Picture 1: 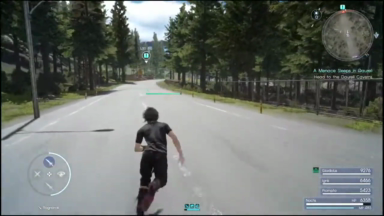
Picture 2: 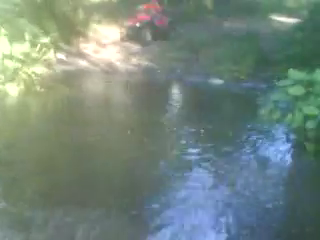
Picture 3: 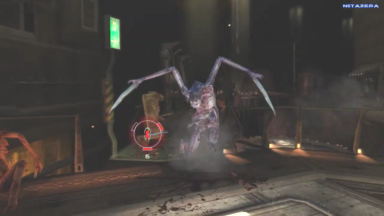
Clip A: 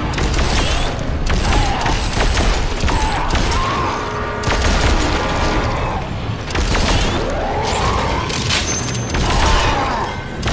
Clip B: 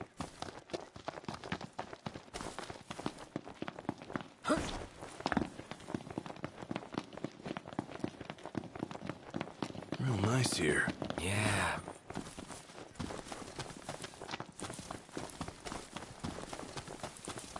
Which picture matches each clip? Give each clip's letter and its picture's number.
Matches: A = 3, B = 1